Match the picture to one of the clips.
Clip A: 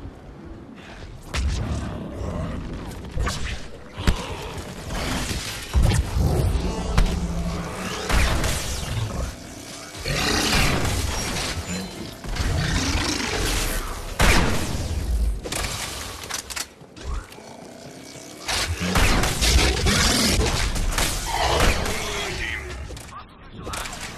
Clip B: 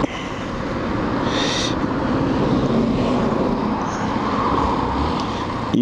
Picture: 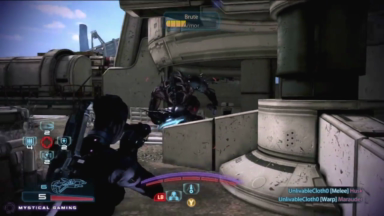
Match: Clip A